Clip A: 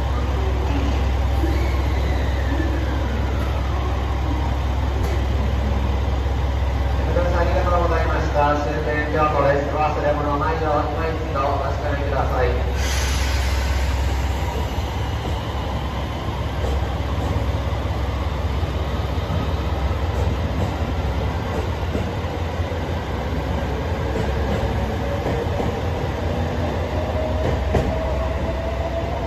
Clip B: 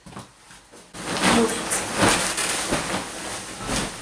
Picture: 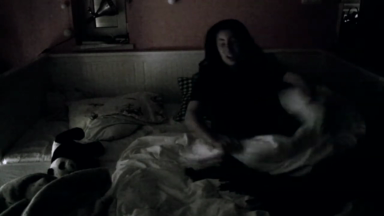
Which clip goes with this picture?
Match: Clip B